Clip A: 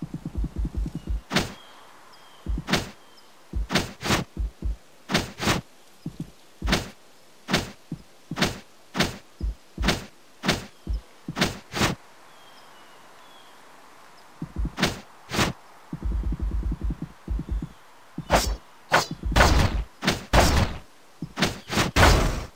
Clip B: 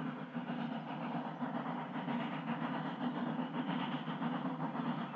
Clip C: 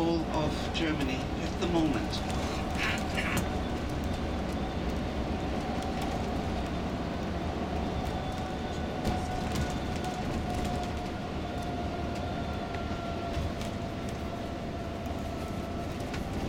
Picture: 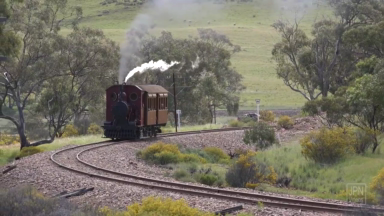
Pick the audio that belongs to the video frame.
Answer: B